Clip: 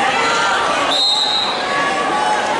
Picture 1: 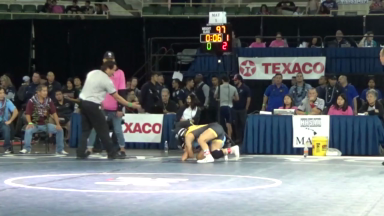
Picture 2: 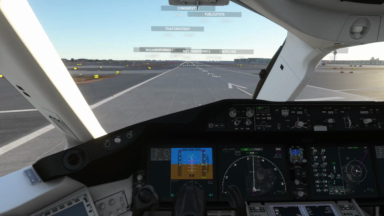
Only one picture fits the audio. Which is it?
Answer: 1